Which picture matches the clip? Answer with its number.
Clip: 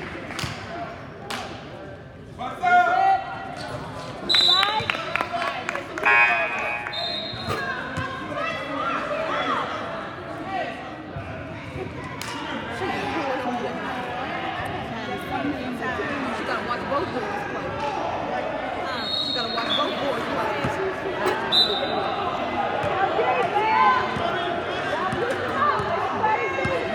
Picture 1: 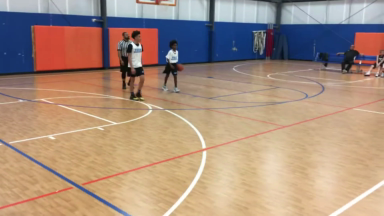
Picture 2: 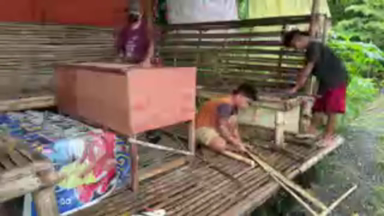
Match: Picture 1